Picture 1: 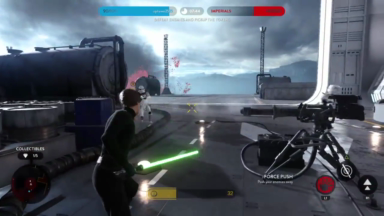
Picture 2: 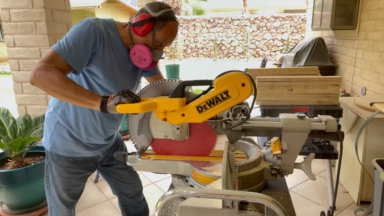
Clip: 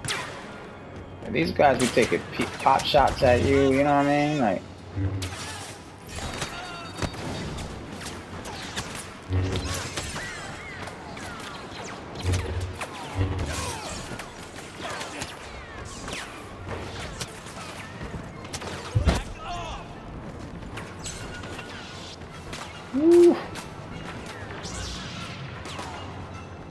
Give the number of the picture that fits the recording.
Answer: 1